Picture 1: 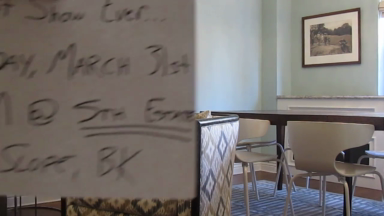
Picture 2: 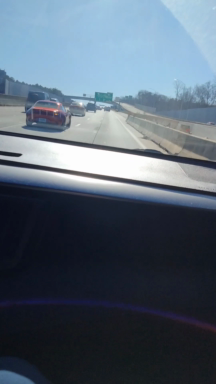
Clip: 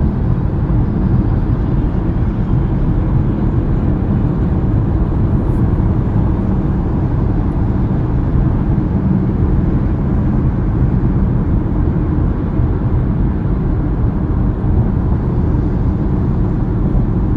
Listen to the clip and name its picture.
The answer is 2